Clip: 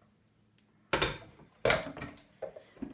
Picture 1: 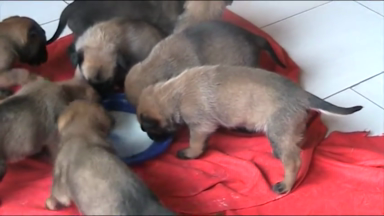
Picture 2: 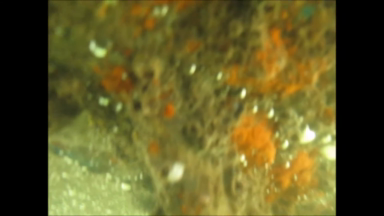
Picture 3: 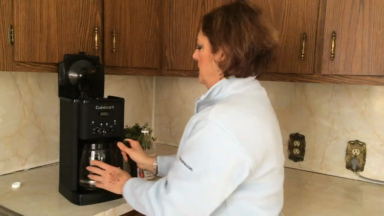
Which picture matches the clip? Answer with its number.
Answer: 3